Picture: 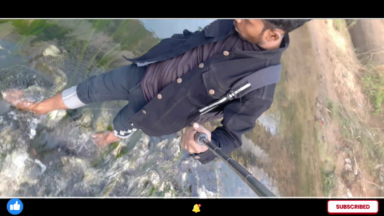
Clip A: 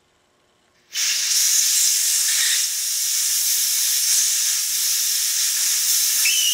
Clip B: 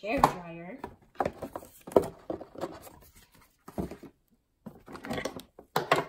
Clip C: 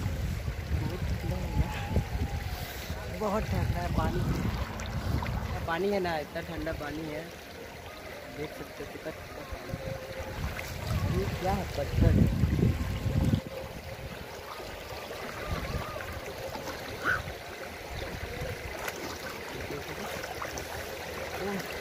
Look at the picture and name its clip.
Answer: C